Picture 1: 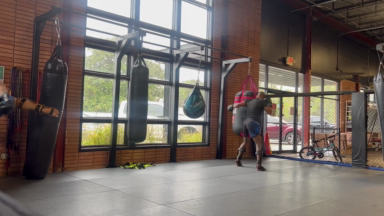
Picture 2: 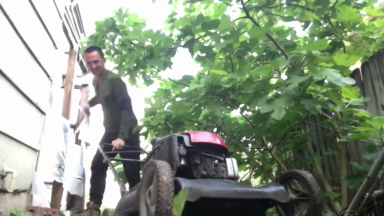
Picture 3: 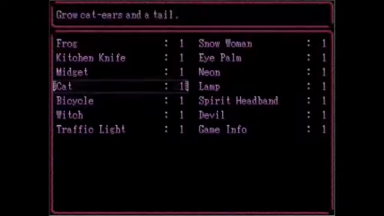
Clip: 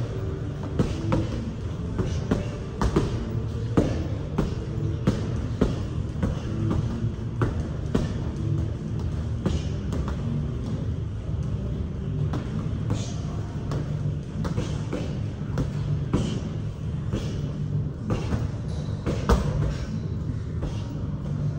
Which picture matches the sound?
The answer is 1